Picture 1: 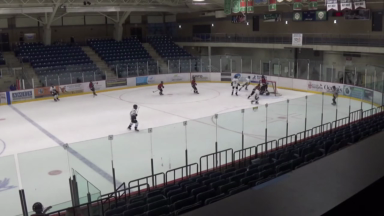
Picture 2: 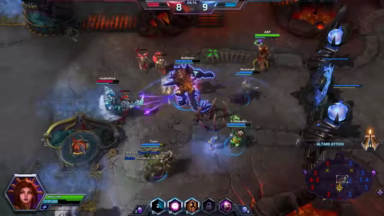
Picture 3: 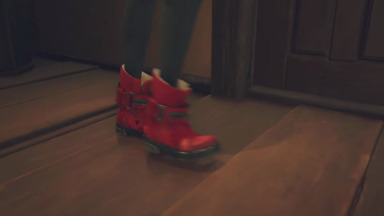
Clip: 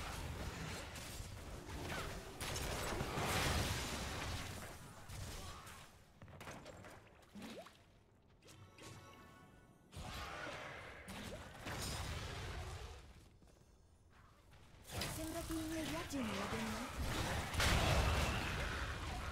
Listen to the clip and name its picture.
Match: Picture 2